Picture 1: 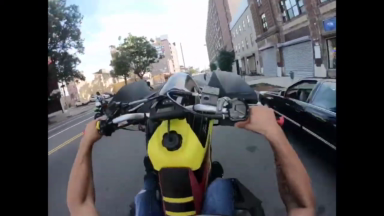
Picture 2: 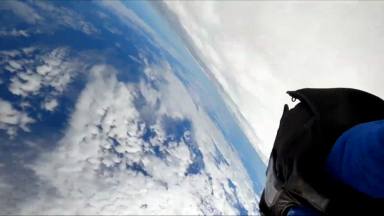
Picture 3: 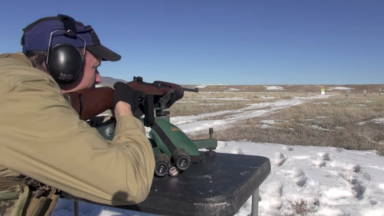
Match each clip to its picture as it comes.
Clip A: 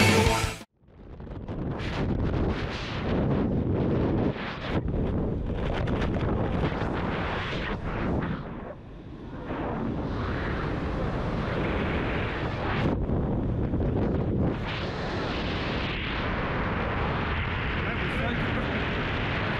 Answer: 2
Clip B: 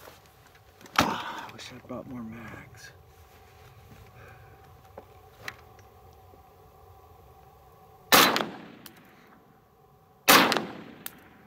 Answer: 3